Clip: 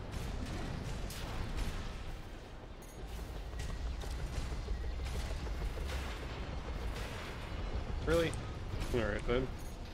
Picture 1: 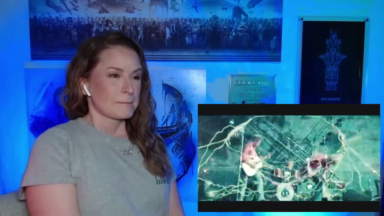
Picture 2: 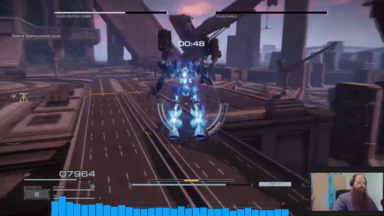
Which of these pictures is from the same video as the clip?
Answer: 2